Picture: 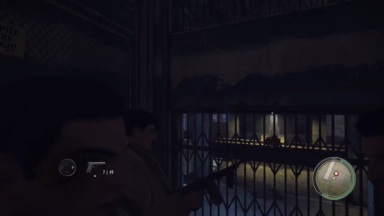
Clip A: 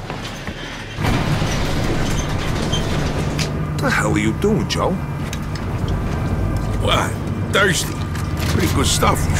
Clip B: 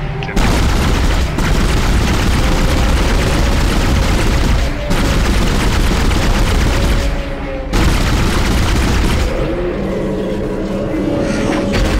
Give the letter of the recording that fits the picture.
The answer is A